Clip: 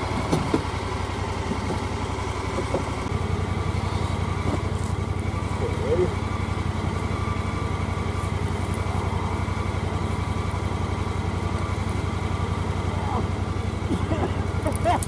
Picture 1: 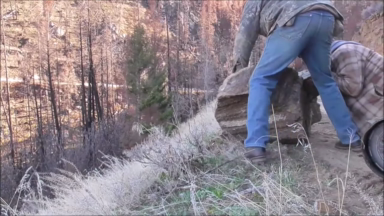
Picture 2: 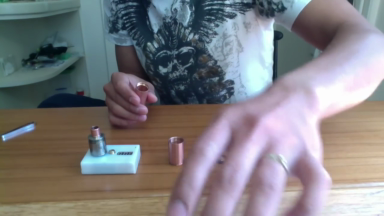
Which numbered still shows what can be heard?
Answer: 1